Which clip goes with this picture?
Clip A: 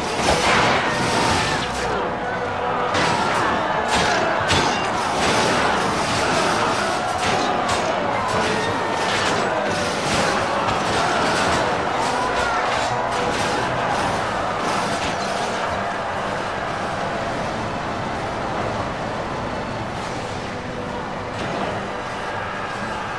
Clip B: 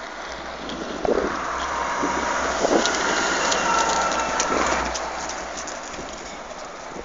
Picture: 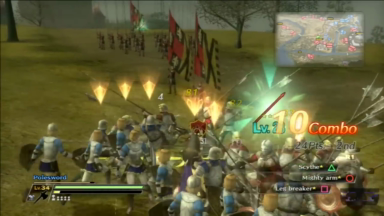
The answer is A